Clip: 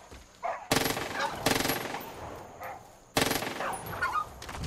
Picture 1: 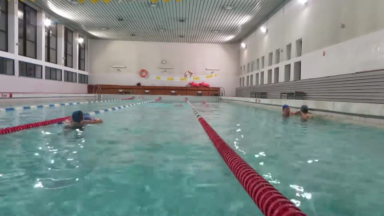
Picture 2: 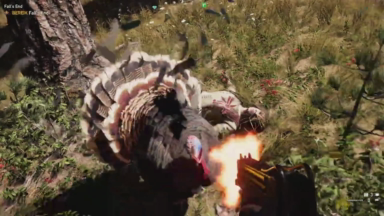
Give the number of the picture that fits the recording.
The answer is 2